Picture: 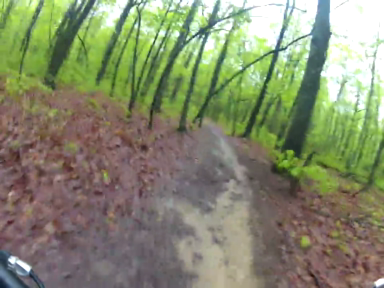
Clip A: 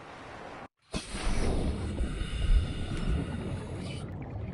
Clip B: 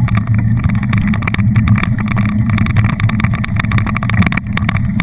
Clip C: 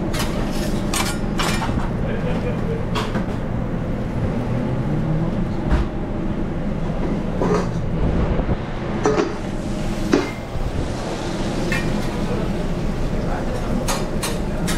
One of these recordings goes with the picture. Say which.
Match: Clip B